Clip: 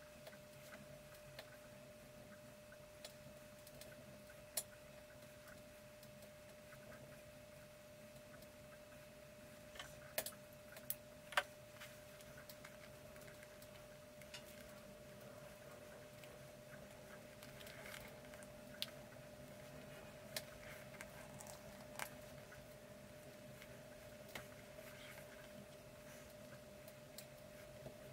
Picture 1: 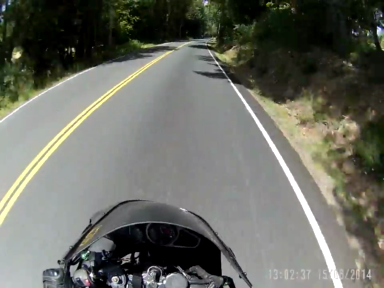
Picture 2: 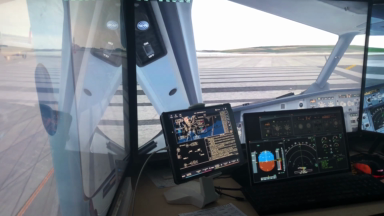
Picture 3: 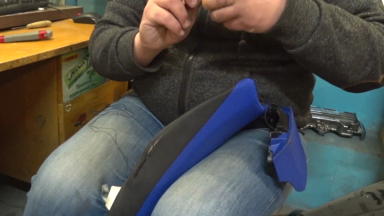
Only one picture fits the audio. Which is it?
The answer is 3